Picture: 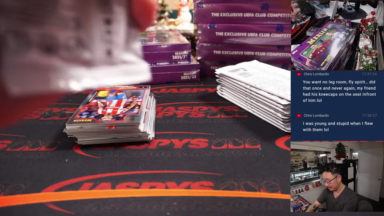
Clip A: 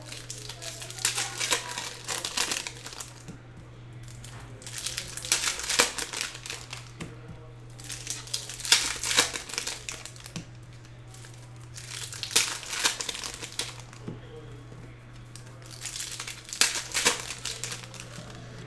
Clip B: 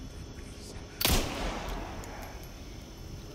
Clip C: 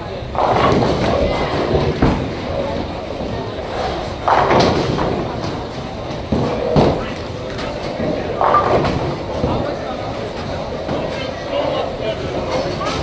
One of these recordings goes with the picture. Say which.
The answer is A